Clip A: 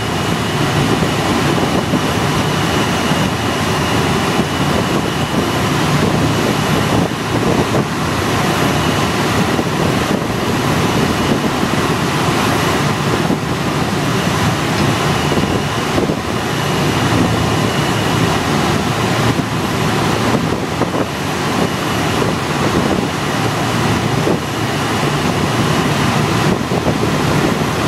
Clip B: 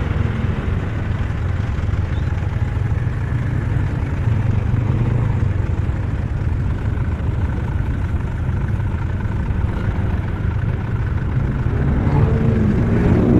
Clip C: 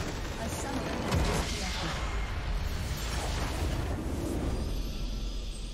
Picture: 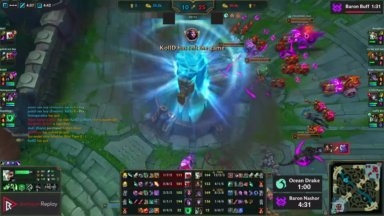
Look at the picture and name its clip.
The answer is C